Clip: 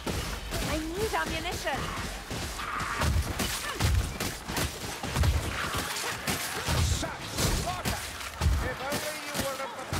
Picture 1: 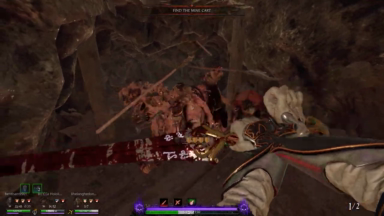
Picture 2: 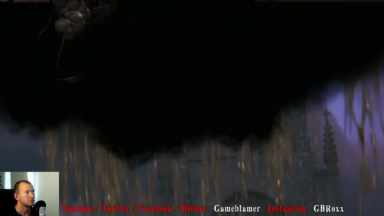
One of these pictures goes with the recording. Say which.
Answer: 1